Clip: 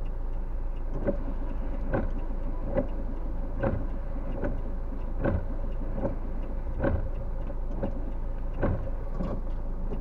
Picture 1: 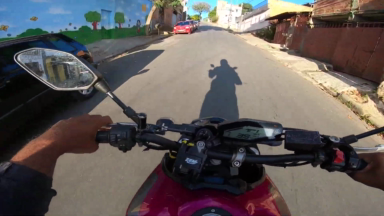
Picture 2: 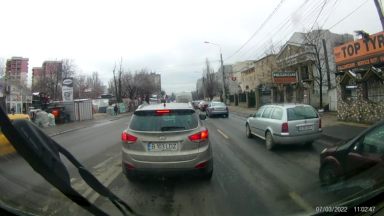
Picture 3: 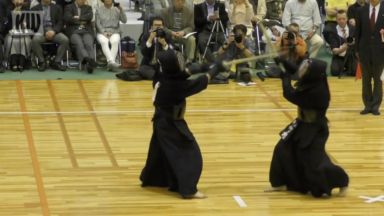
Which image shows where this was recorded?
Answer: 2